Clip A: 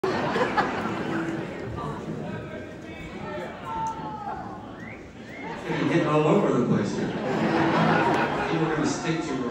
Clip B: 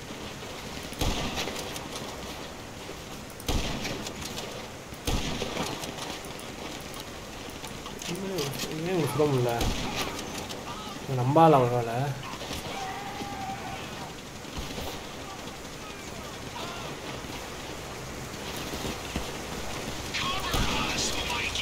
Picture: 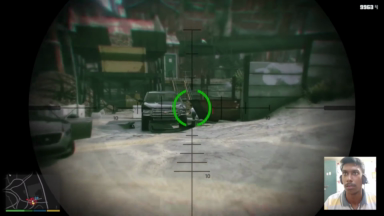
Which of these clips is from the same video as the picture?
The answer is B